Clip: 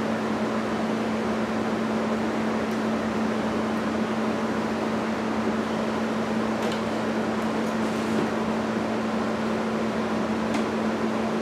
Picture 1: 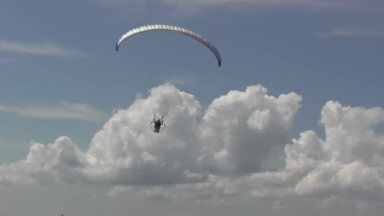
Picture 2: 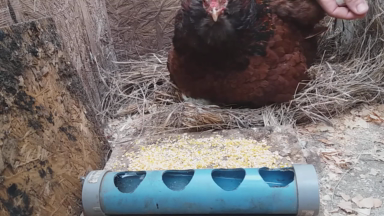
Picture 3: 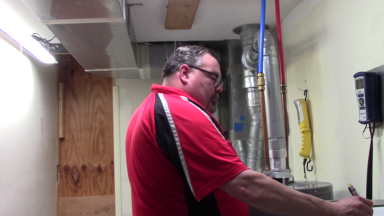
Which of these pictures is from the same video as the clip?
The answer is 3